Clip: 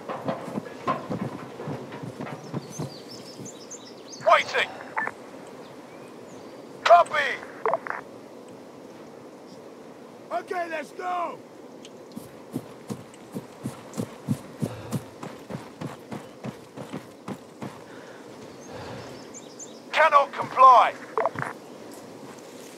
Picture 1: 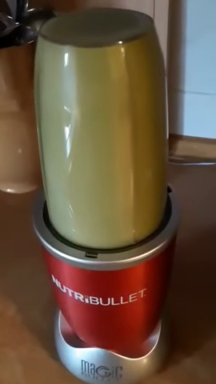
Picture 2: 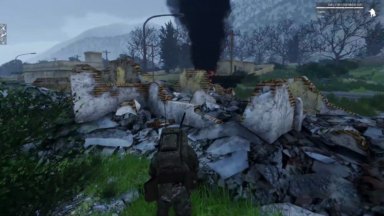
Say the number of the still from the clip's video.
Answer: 2